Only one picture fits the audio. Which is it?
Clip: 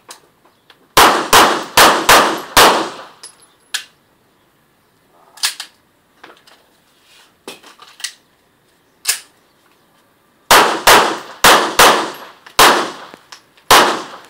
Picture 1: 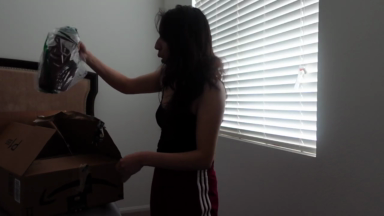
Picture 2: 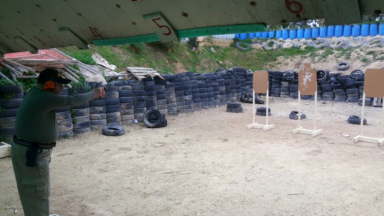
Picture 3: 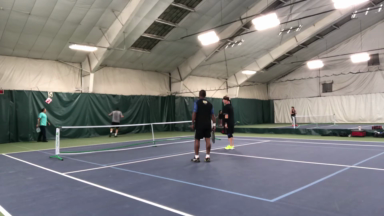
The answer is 2